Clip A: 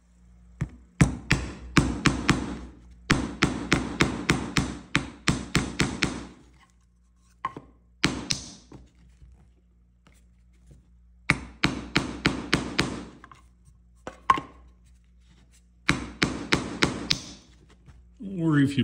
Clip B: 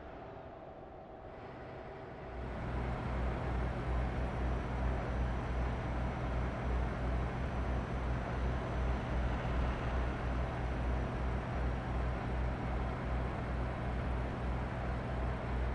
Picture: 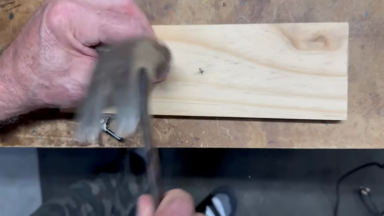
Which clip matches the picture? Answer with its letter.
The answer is A